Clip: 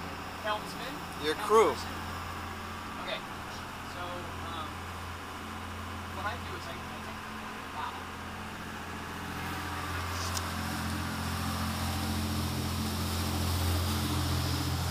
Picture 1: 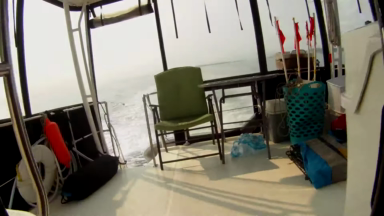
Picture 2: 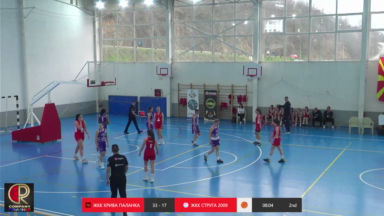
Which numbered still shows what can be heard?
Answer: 1